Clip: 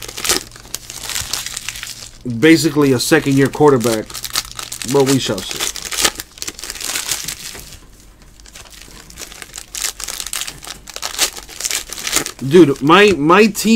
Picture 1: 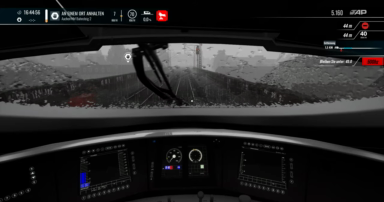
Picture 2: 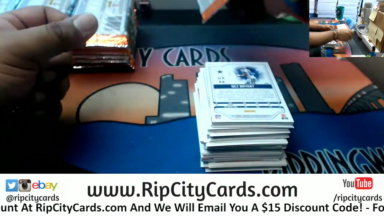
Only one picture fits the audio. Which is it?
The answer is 2